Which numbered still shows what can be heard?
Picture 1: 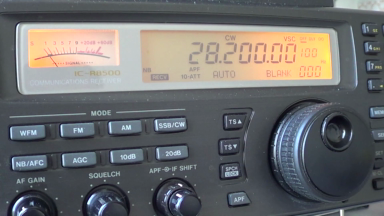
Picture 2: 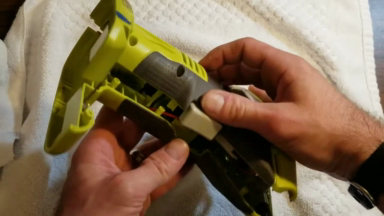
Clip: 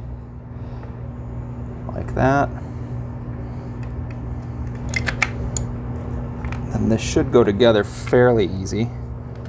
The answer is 2